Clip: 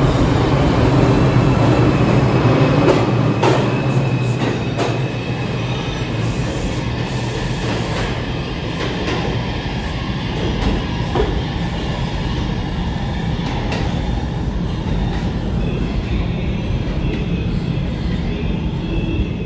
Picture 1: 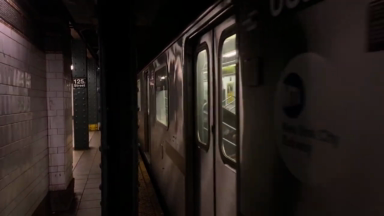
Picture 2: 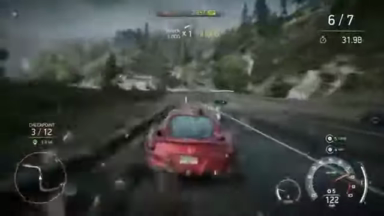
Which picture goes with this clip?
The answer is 1